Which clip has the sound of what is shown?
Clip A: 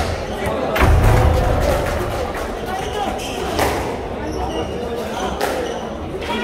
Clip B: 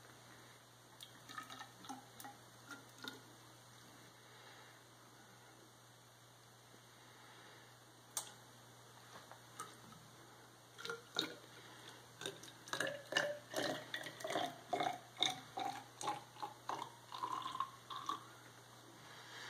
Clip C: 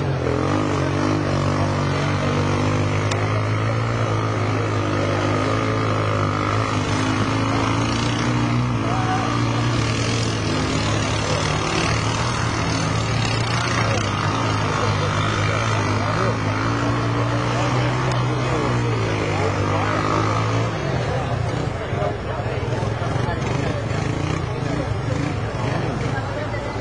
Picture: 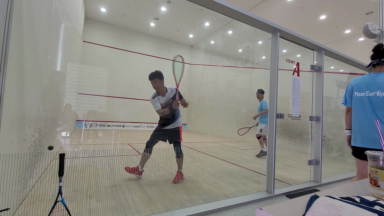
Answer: A